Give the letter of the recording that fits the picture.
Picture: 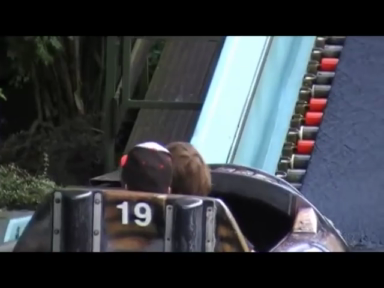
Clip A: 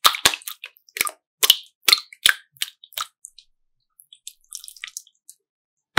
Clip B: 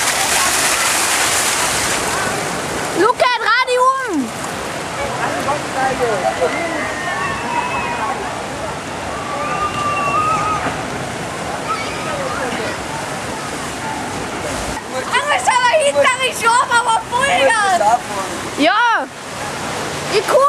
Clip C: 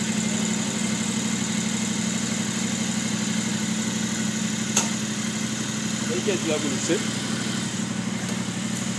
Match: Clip B